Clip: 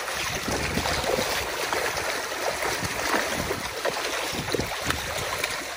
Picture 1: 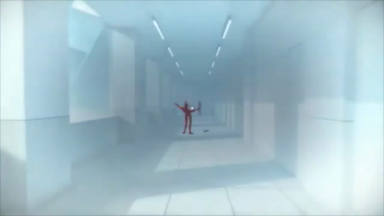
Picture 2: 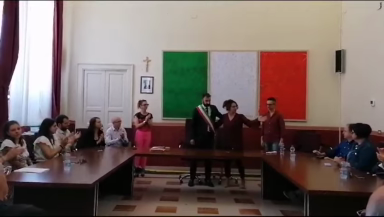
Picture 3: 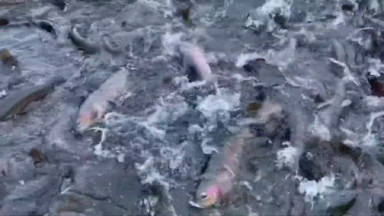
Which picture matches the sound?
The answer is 3